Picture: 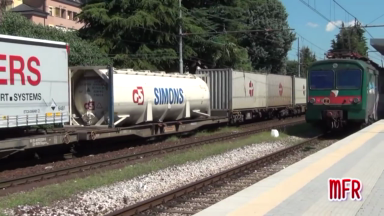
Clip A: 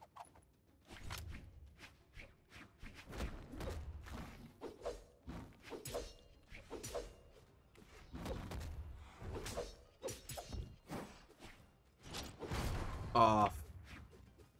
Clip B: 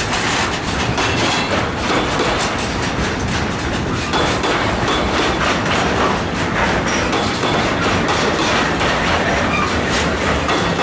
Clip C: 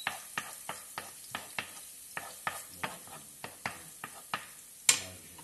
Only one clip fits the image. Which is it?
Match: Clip B